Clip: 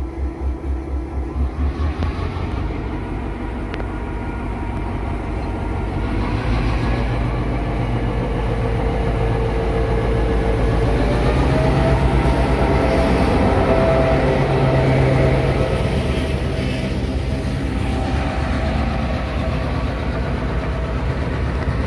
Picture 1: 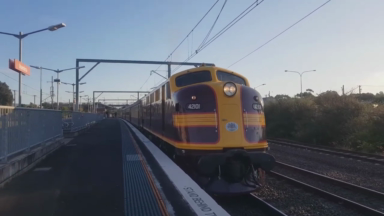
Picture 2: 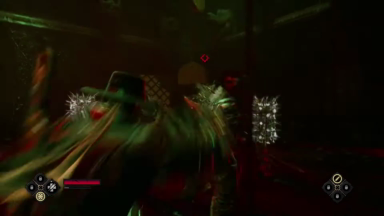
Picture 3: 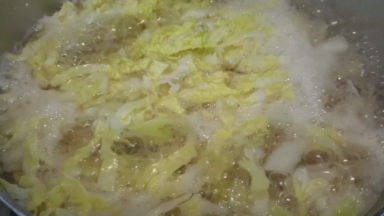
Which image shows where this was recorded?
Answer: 1